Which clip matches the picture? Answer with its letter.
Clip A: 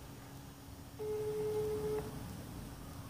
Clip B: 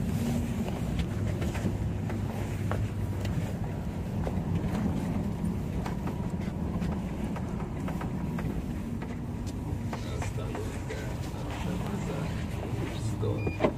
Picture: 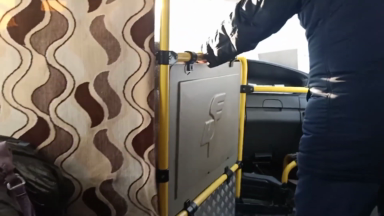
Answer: B